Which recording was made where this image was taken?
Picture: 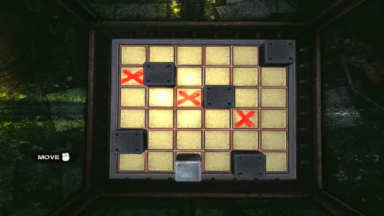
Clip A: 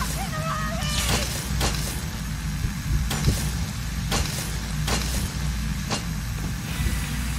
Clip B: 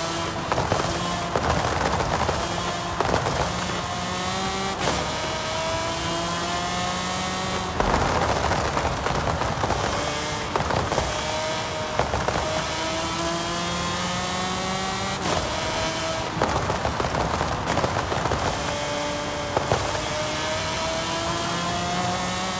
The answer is A